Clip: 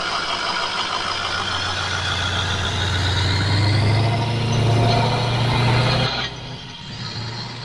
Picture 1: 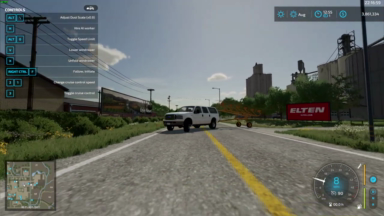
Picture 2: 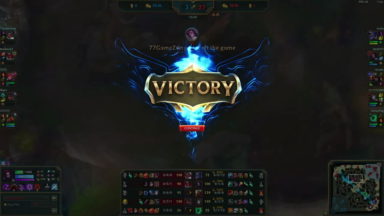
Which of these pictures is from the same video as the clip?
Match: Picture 1